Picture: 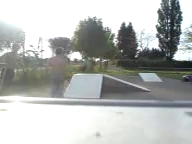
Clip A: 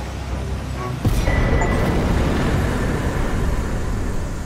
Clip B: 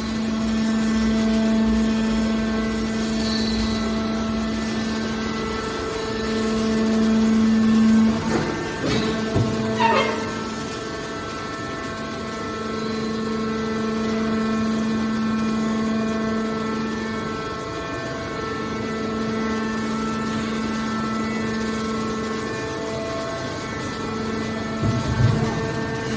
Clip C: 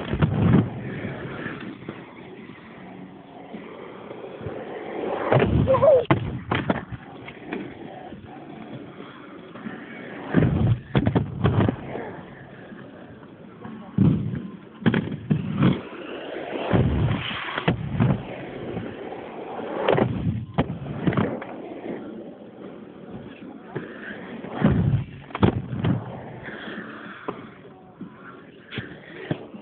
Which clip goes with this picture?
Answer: C